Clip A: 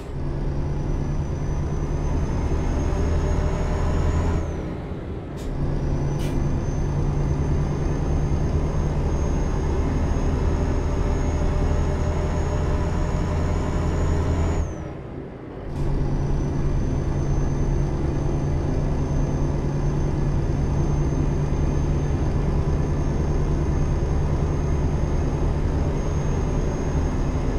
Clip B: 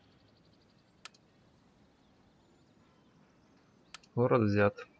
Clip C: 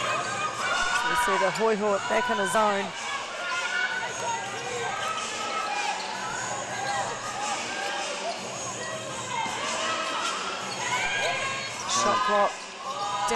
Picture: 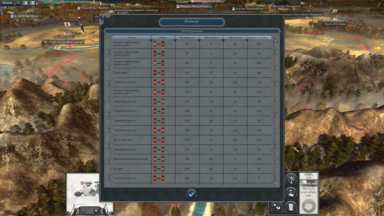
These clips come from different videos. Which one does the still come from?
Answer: B